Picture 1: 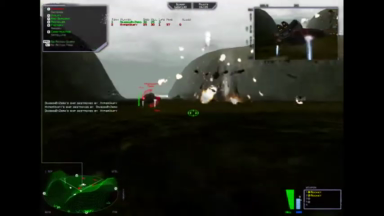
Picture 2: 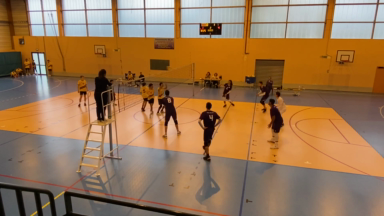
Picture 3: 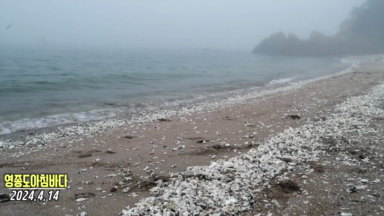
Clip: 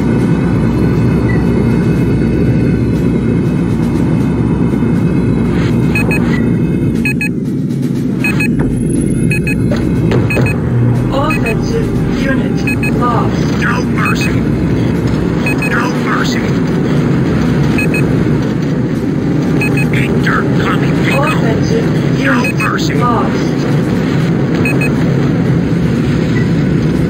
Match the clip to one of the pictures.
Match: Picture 1